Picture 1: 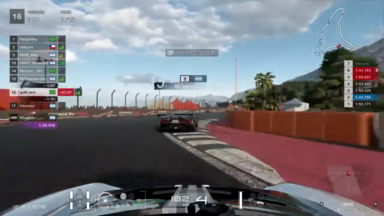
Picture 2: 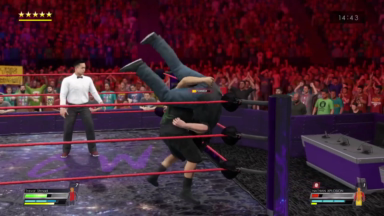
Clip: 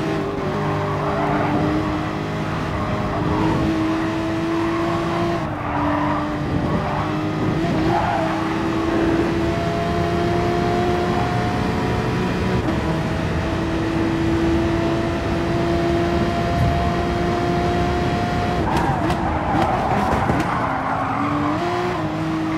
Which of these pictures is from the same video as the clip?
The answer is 1